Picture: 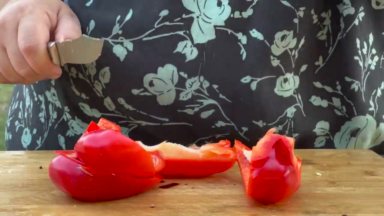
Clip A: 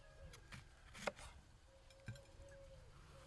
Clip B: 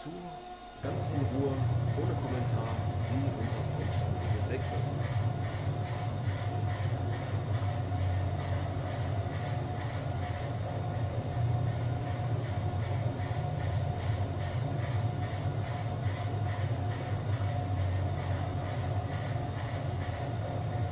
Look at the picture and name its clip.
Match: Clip A